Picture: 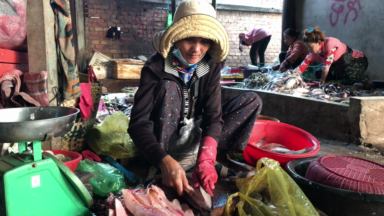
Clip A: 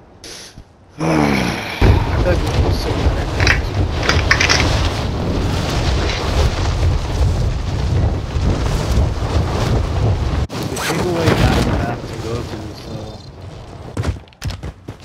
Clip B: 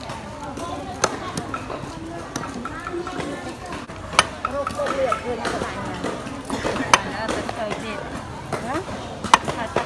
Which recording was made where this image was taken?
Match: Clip B